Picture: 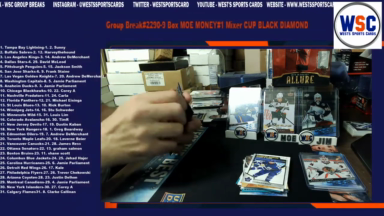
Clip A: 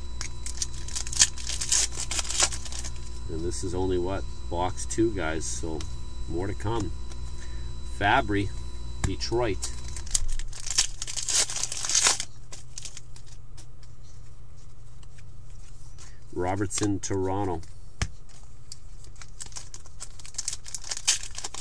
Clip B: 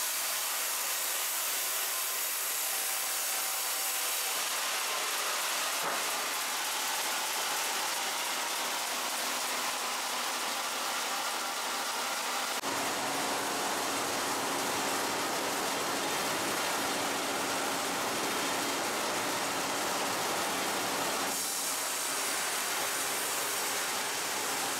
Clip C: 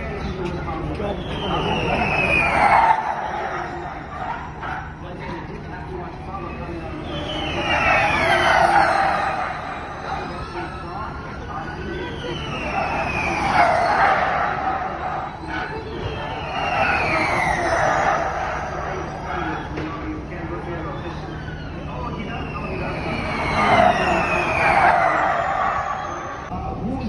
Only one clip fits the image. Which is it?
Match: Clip A